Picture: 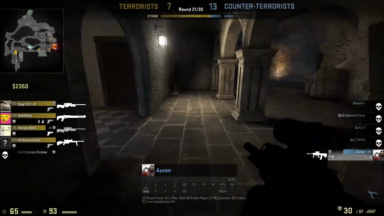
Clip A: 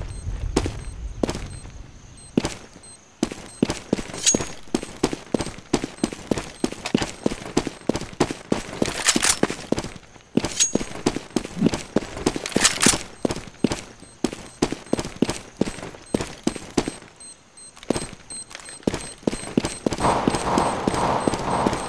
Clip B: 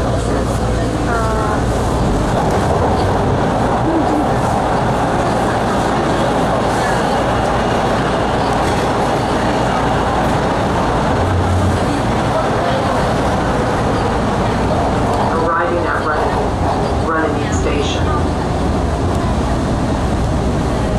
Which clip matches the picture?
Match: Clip A